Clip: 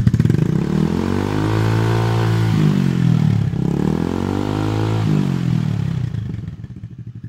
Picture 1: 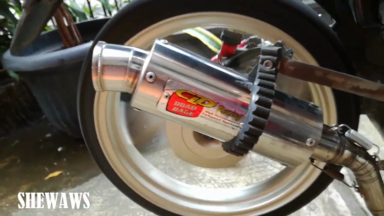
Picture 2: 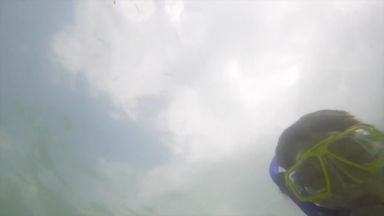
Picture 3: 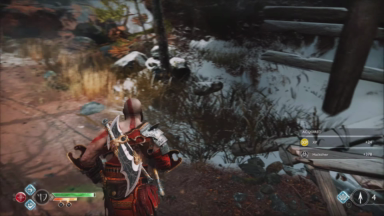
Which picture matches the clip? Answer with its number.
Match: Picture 1